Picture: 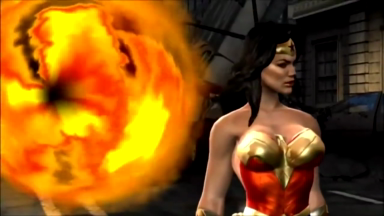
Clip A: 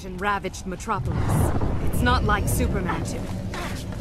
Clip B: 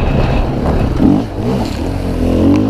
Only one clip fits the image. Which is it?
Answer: A